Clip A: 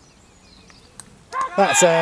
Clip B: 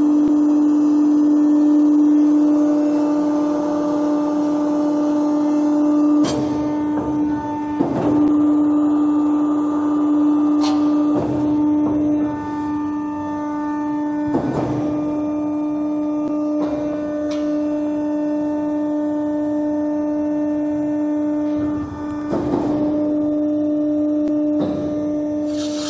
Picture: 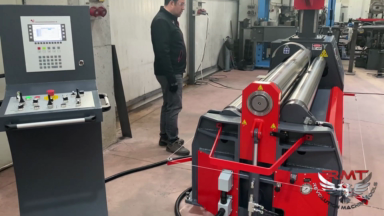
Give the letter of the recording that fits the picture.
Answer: B